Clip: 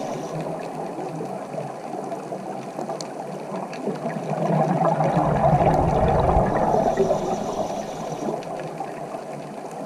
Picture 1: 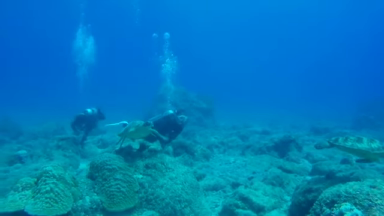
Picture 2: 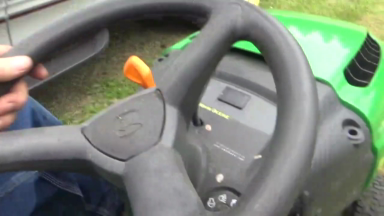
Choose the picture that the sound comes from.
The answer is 1